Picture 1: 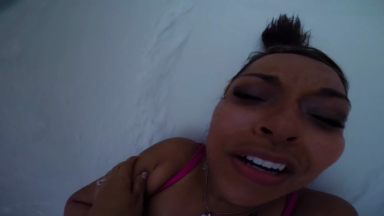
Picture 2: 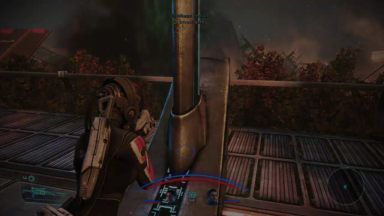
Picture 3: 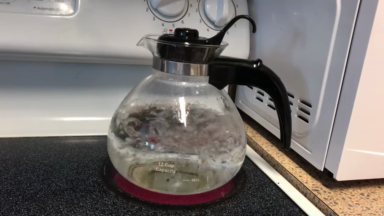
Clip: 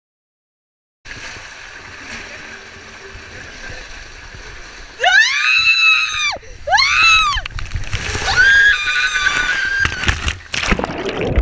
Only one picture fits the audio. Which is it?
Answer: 1